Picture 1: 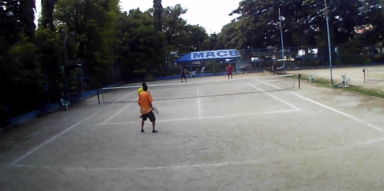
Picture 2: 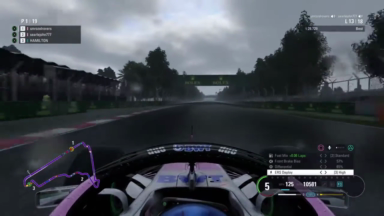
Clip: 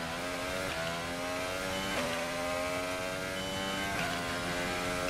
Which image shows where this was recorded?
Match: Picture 2